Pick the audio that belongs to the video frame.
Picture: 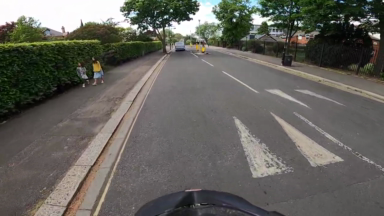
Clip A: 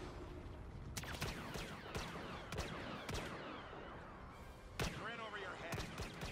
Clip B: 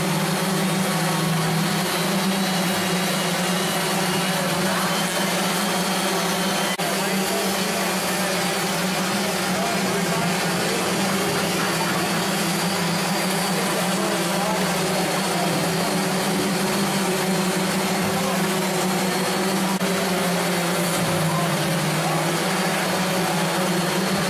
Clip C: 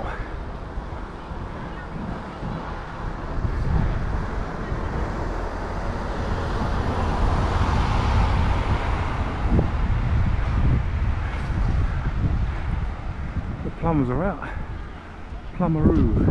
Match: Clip C